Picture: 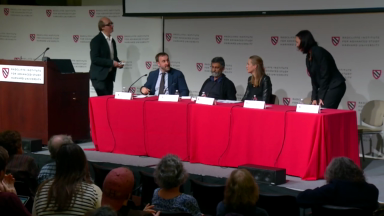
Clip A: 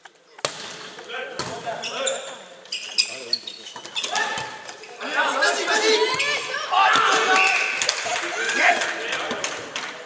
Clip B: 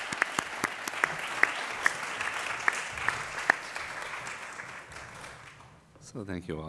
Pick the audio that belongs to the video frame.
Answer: B